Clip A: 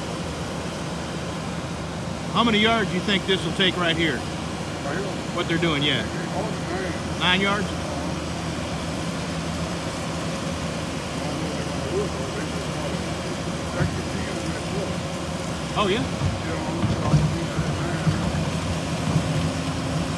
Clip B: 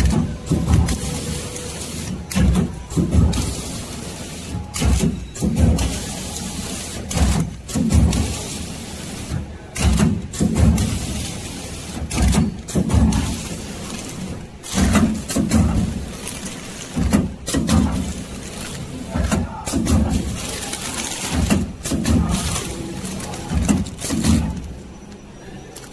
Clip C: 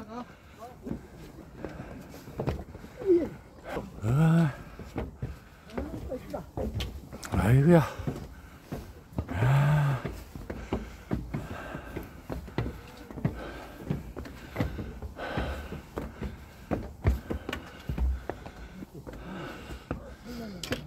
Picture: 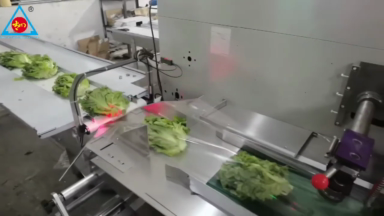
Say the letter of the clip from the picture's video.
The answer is B